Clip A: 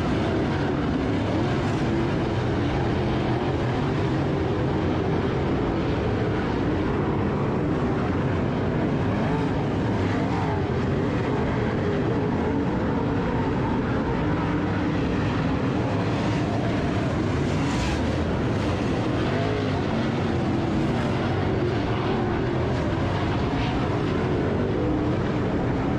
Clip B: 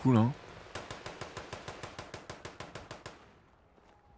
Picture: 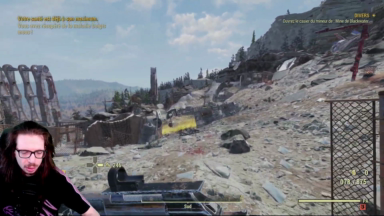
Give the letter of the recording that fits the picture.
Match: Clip B